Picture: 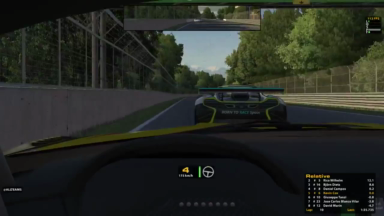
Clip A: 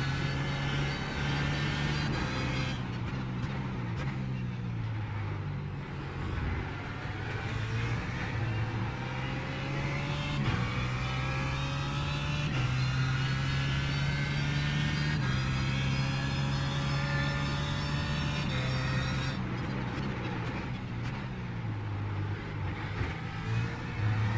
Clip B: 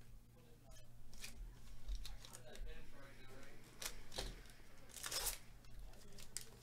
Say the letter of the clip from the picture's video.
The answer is A